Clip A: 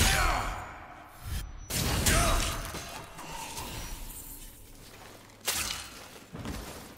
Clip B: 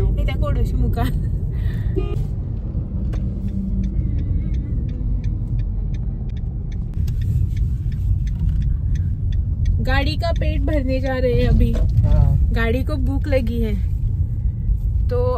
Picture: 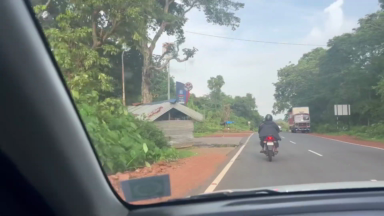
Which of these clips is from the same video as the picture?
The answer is B